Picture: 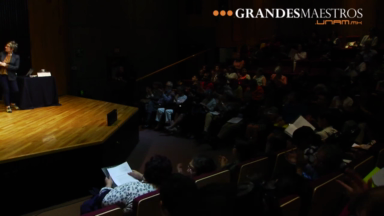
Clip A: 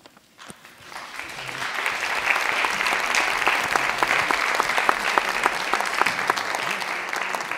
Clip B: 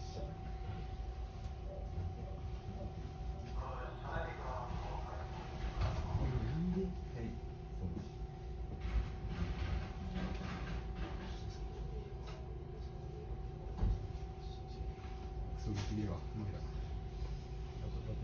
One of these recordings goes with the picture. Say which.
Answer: A